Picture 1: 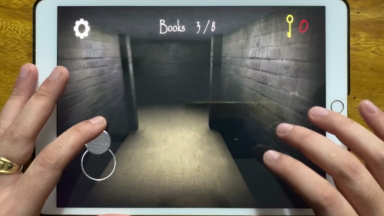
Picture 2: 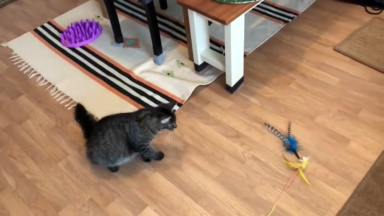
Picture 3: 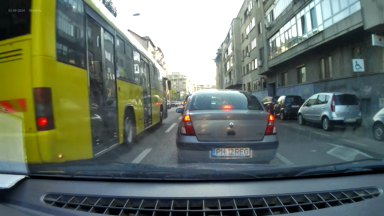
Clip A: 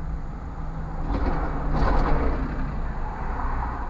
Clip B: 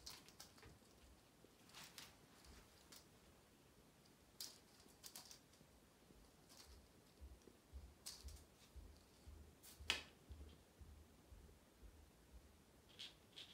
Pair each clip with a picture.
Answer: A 3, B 2